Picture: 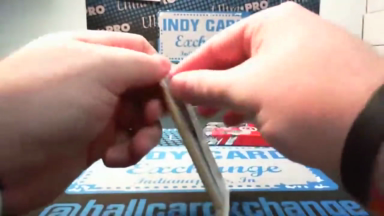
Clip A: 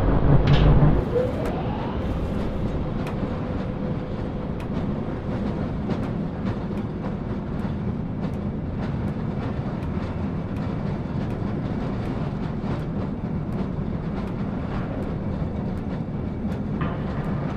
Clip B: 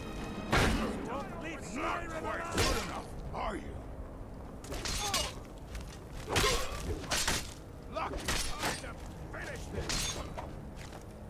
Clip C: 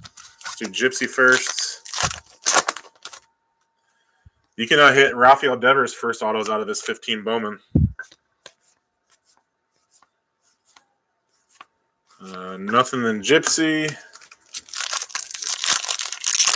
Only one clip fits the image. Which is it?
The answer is C